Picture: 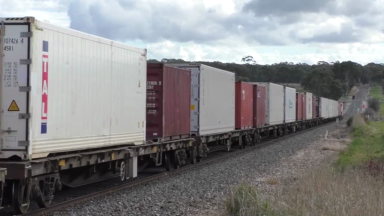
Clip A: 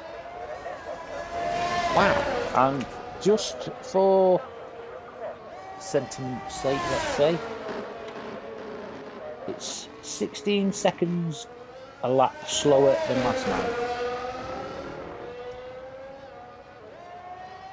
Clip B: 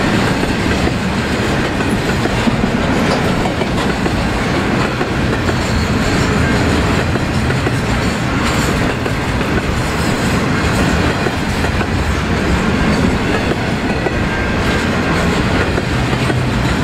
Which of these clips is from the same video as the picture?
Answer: B